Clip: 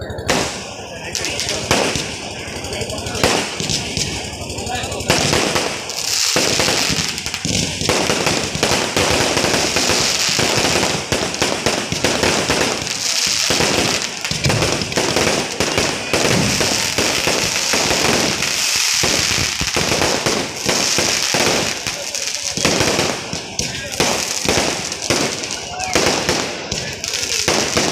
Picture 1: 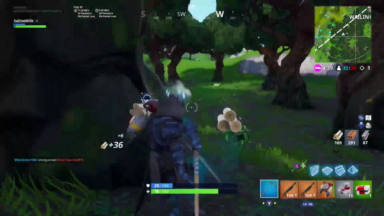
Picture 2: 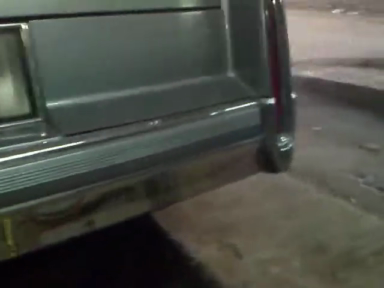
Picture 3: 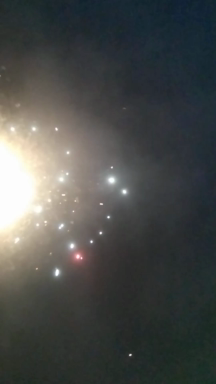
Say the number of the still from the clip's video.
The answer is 3